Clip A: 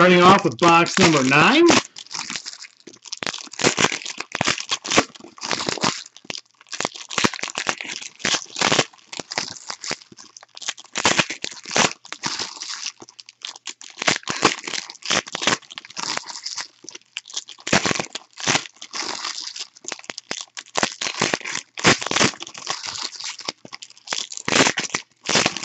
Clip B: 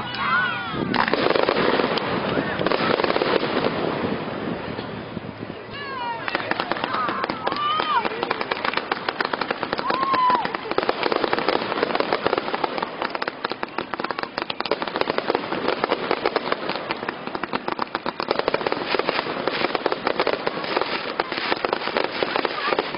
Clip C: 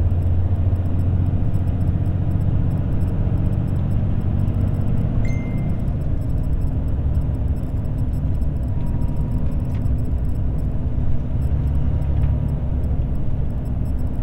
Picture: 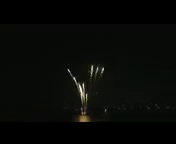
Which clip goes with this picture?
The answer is B